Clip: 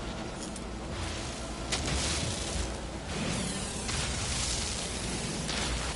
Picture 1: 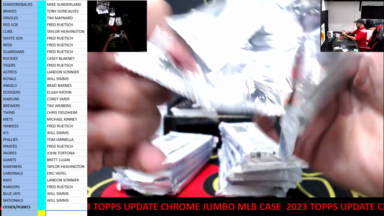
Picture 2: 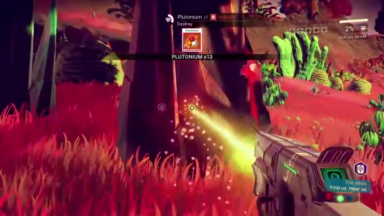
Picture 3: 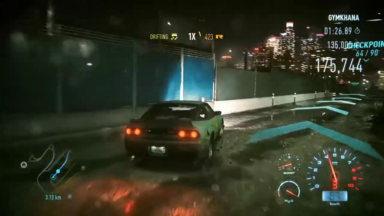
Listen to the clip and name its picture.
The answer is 2